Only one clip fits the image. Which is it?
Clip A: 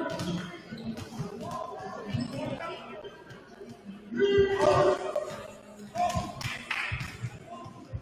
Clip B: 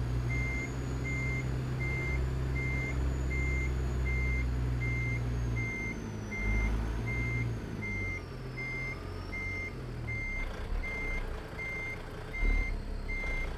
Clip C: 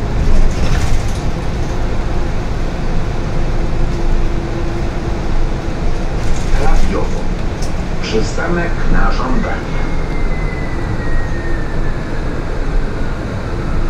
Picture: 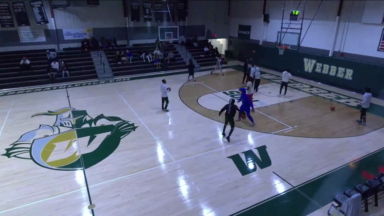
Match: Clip A